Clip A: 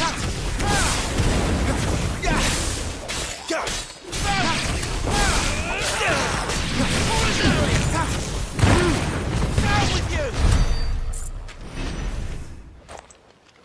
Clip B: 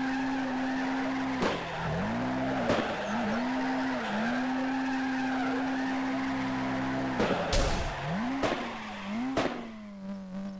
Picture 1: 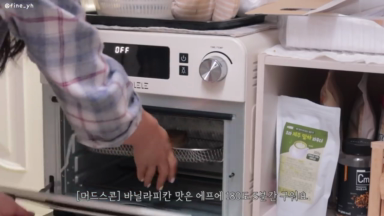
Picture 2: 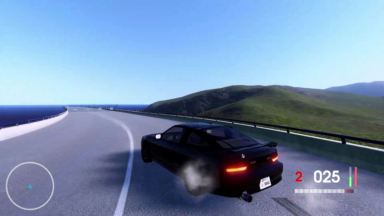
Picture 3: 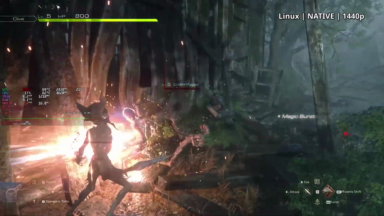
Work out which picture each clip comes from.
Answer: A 3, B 2